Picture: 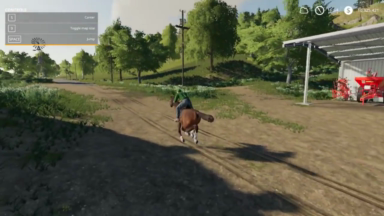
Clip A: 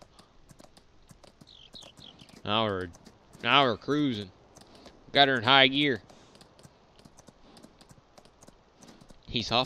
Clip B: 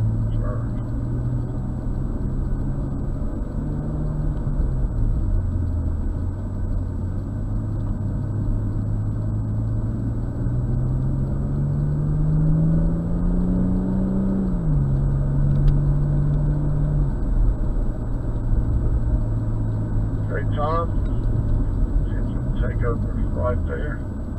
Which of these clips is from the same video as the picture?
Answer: A